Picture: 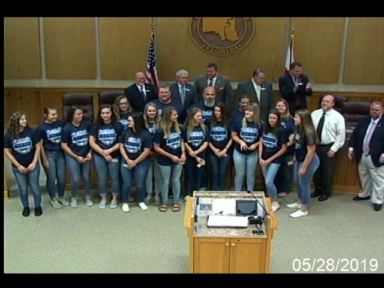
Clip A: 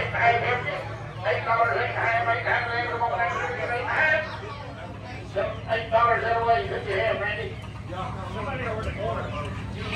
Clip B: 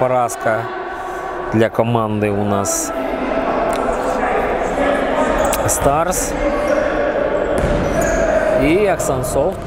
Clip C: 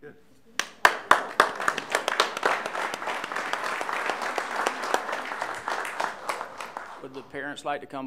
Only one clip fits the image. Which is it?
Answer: C